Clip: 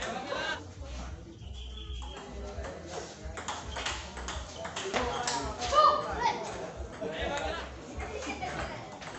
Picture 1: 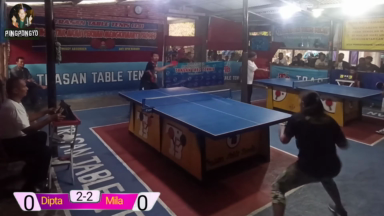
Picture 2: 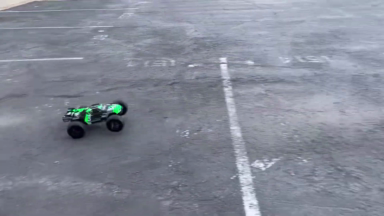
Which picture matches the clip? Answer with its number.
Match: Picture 1